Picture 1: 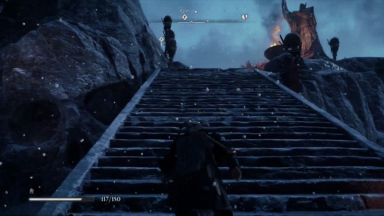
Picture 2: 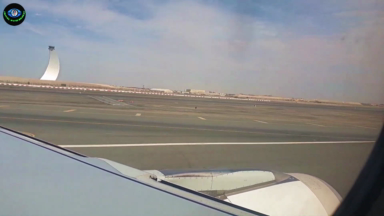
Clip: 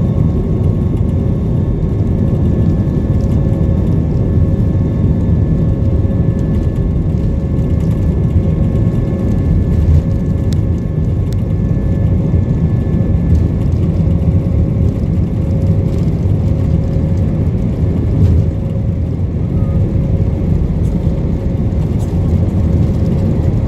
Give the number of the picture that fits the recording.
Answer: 2